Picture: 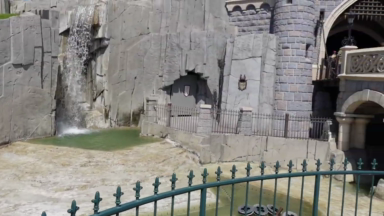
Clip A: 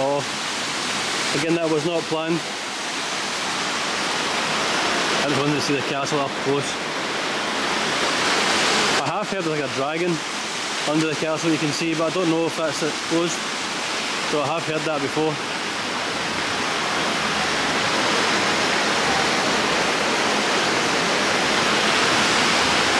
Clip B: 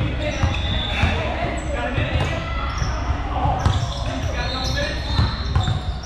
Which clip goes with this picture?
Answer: A